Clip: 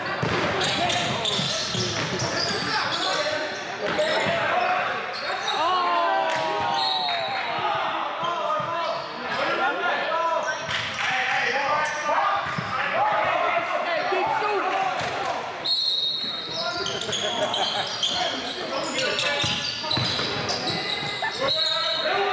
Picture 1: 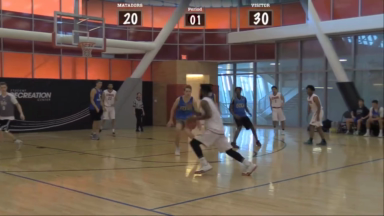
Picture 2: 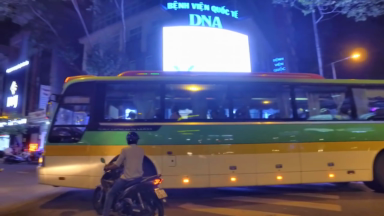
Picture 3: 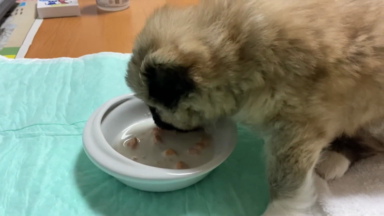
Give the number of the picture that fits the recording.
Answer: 1